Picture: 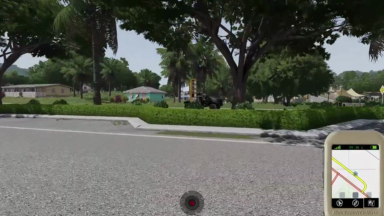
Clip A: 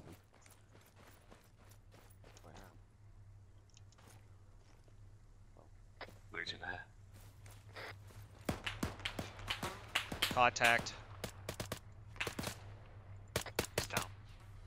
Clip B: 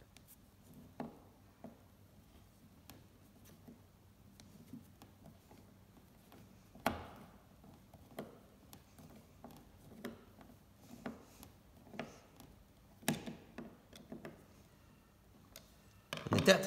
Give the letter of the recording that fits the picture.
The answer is A